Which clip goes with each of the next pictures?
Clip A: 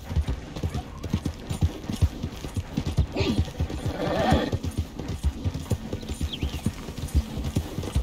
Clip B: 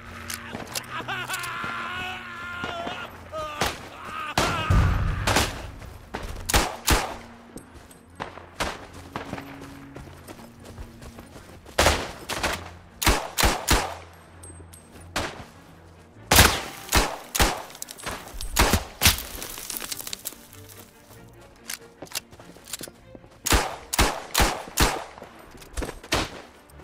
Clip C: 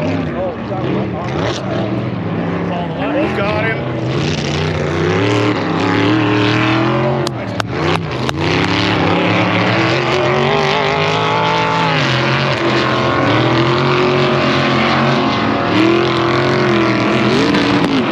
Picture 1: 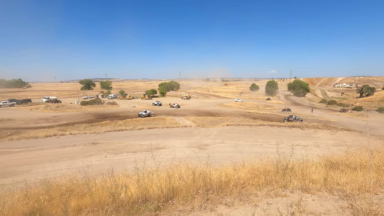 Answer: C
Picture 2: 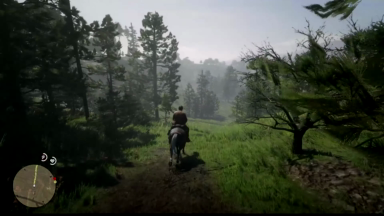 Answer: A